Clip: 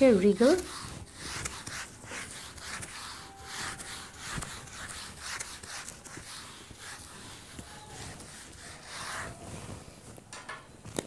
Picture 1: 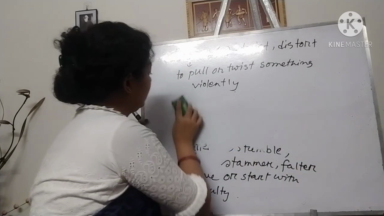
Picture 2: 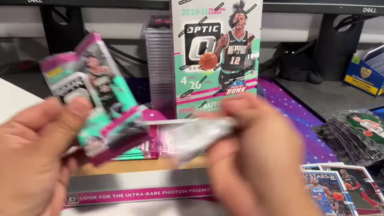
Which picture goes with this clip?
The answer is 1